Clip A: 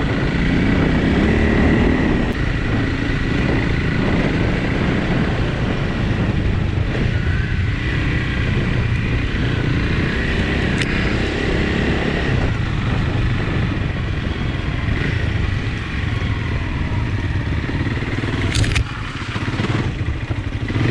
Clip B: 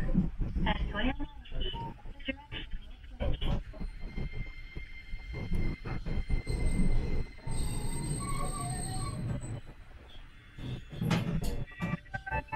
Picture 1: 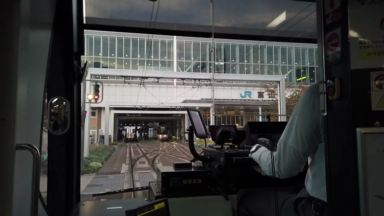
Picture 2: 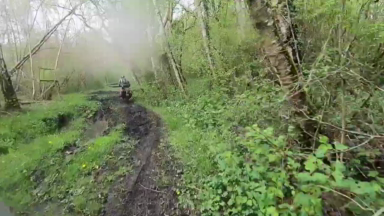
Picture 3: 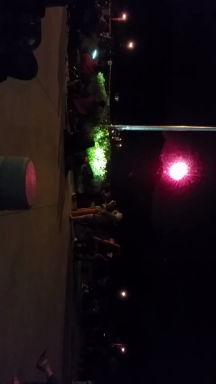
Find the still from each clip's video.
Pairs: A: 2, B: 1